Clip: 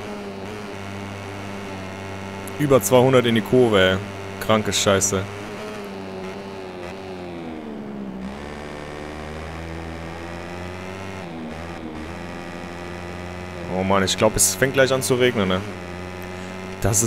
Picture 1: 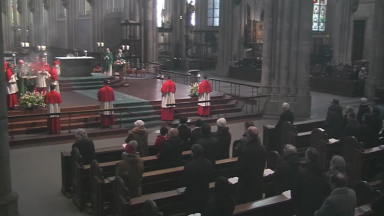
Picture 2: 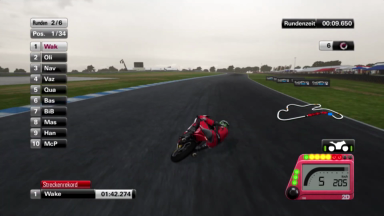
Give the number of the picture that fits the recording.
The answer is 2